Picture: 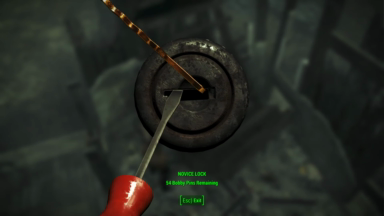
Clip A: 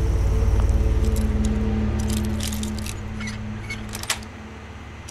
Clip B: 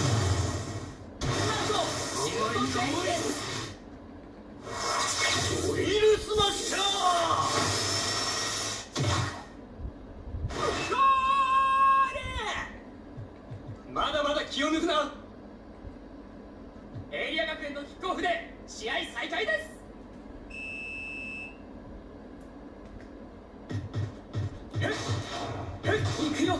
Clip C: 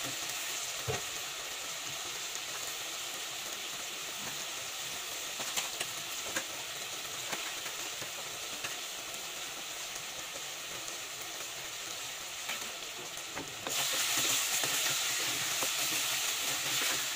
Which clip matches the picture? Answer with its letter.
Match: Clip A